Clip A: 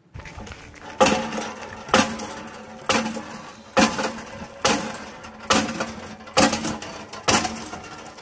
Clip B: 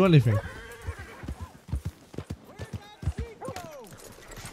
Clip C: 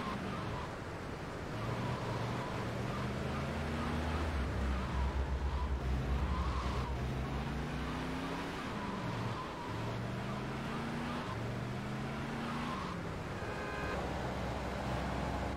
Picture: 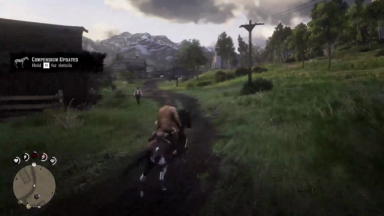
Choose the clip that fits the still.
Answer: B